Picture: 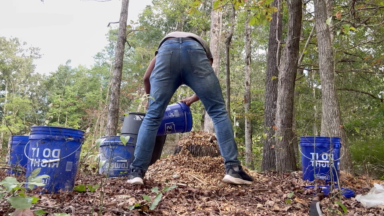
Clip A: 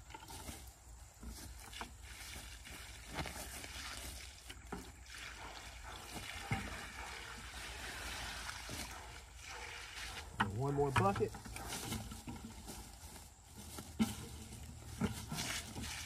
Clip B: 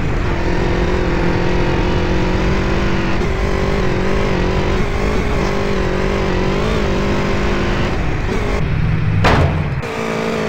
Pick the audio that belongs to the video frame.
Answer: A